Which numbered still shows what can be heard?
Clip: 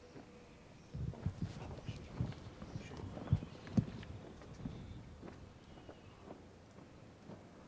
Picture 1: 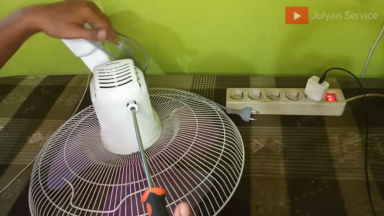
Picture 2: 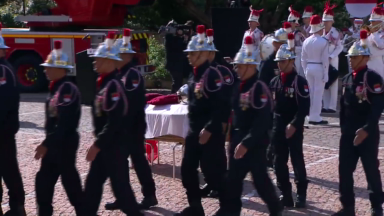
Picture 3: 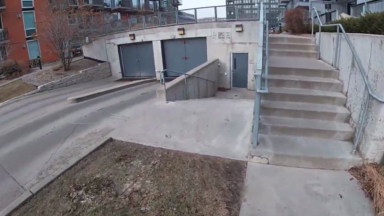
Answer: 2